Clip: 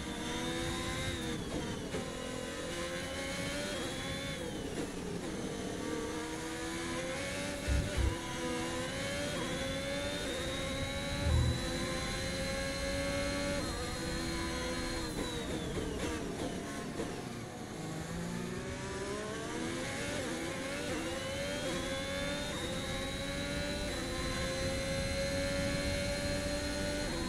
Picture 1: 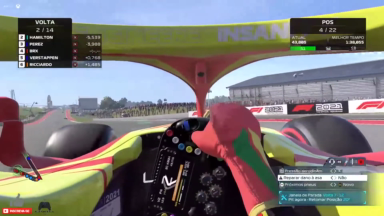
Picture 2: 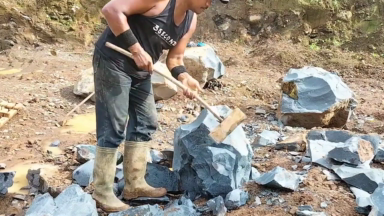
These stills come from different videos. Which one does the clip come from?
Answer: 1